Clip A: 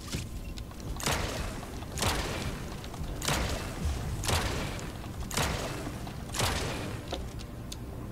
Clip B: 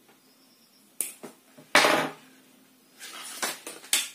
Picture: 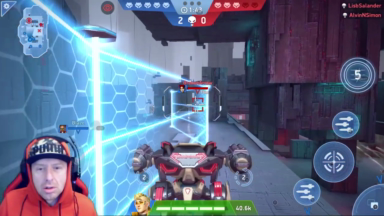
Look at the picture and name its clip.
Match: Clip A